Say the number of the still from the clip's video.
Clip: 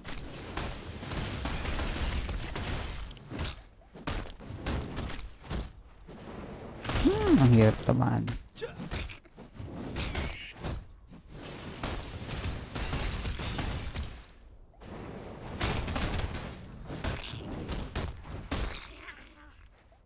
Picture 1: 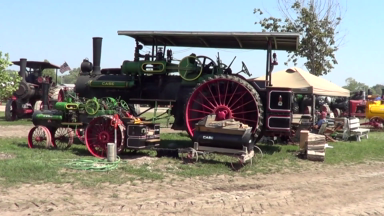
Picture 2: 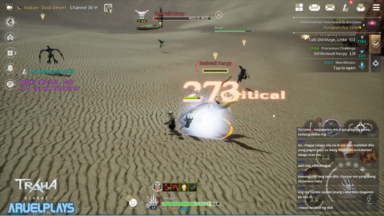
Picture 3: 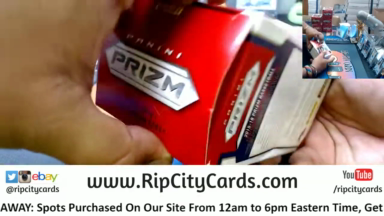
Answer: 2